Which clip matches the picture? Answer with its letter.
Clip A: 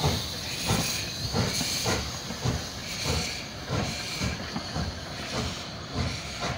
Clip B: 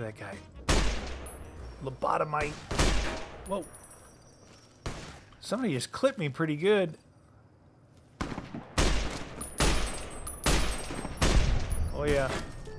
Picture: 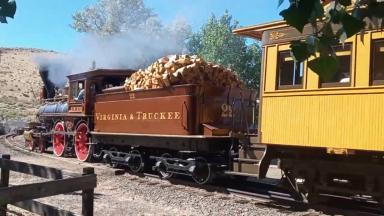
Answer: A